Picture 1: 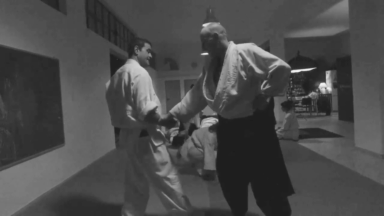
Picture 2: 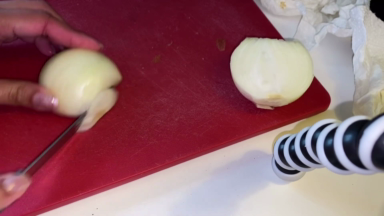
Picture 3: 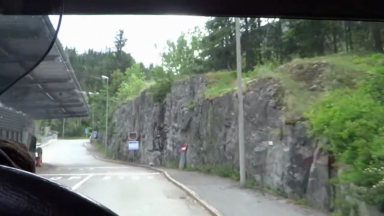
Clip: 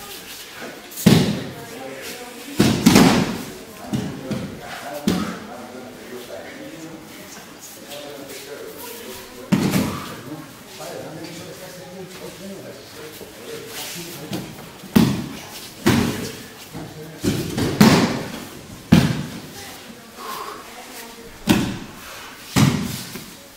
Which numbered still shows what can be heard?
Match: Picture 1